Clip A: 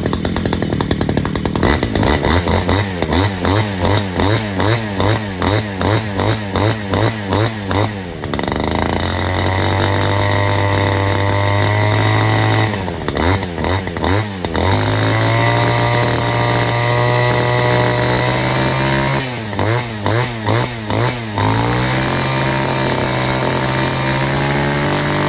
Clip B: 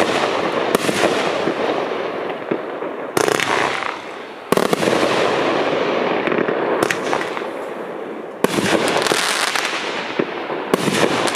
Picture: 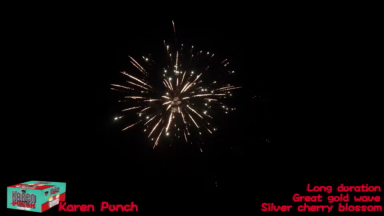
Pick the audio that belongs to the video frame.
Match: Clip B